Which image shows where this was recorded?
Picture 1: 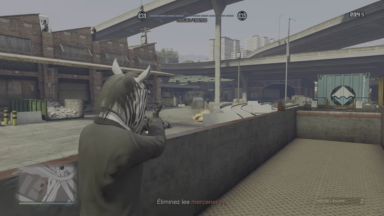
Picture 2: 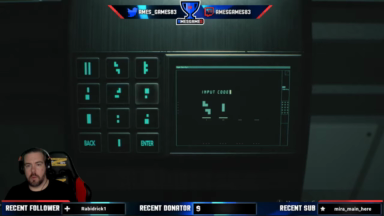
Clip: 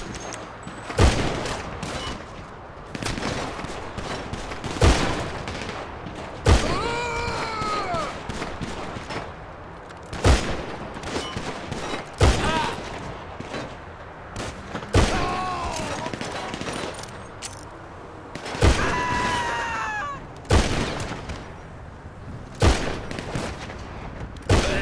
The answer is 1